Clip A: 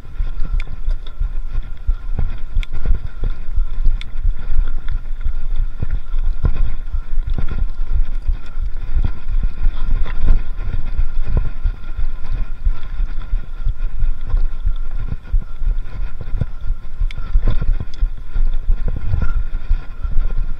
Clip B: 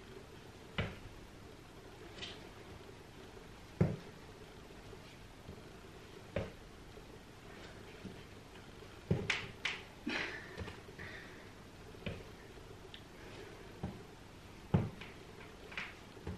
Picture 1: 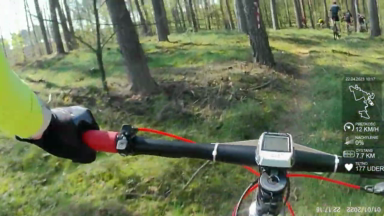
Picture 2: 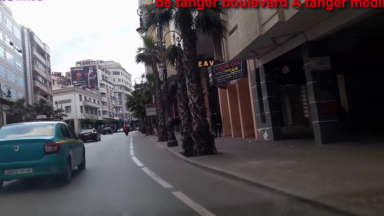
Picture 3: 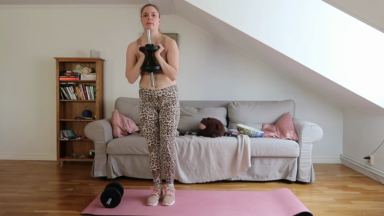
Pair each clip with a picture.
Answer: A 1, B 3